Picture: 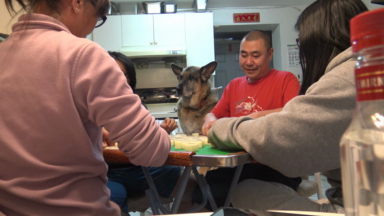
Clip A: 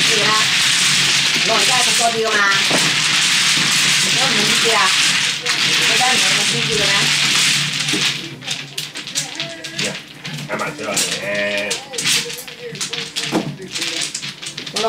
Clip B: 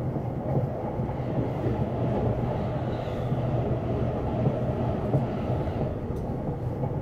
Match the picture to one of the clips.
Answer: A